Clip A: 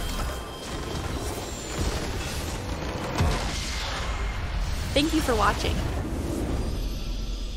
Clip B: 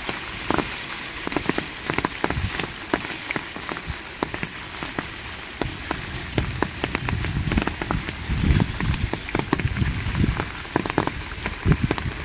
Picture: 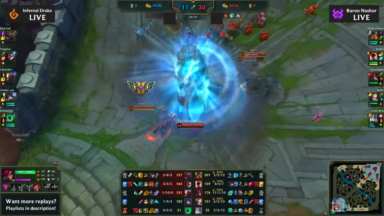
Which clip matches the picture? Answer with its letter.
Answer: A